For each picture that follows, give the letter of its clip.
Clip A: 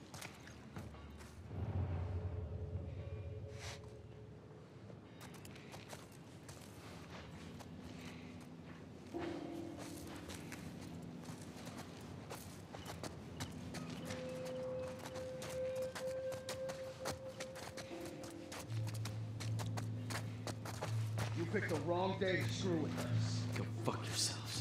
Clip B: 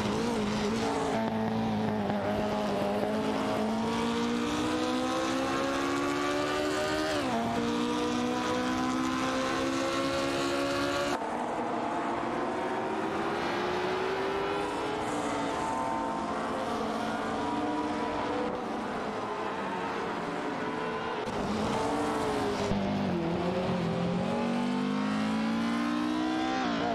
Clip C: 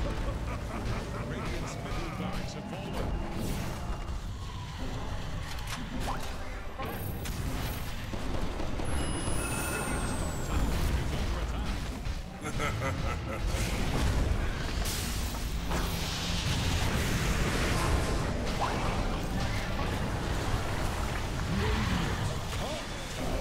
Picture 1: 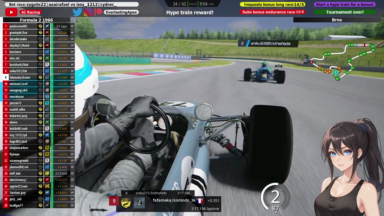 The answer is B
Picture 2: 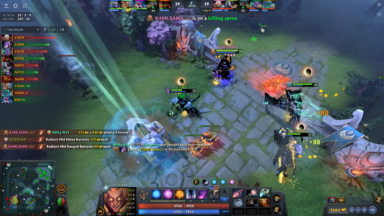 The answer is C